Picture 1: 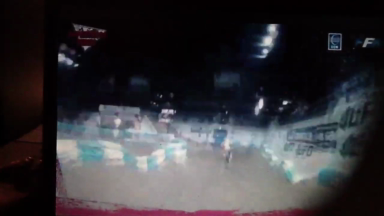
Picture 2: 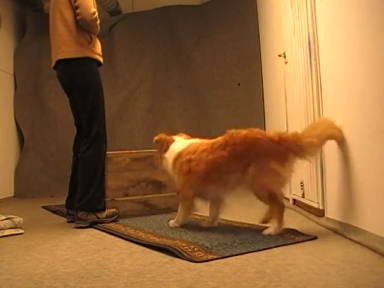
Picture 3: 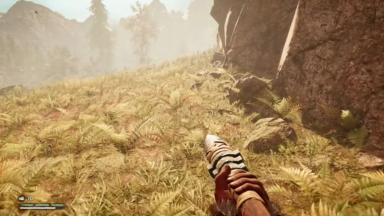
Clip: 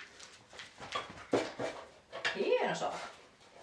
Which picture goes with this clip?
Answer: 2